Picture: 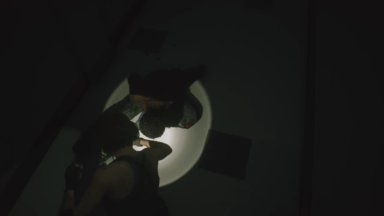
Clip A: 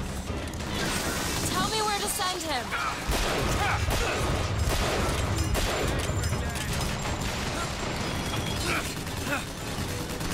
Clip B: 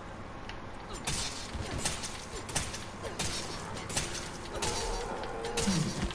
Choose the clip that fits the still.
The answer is B